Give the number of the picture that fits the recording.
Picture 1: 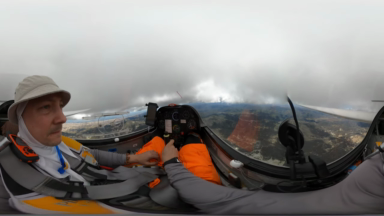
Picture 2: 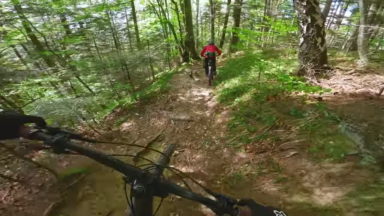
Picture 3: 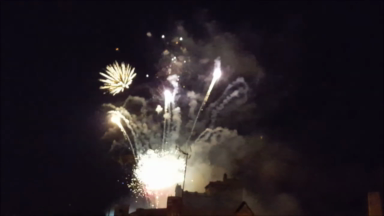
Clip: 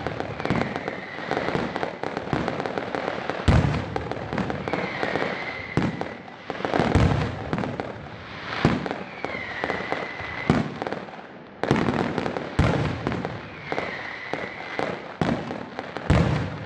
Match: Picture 3